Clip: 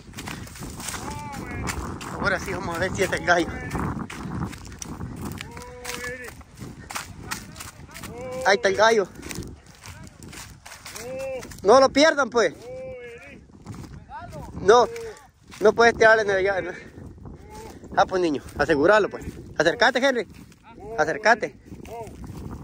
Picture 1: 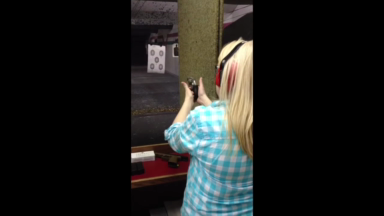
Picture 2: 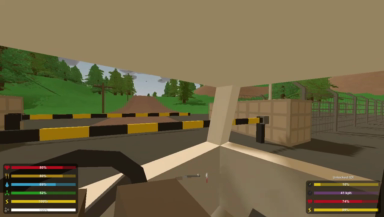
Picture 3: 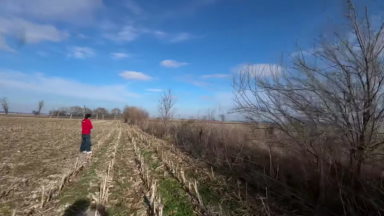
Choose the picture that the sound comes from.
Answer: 3